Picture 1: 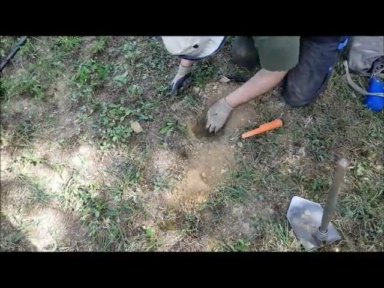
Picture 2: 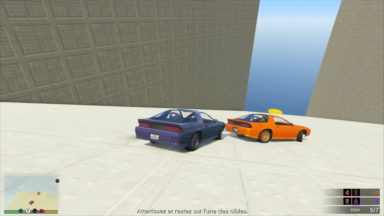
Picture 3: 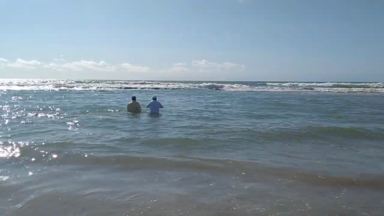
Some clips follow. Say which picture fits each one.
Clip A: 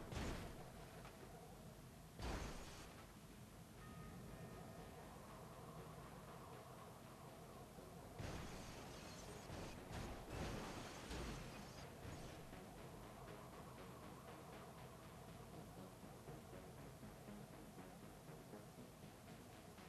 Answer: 2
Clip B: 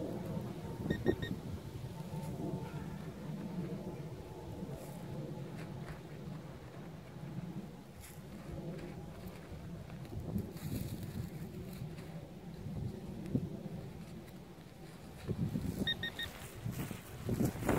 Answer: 1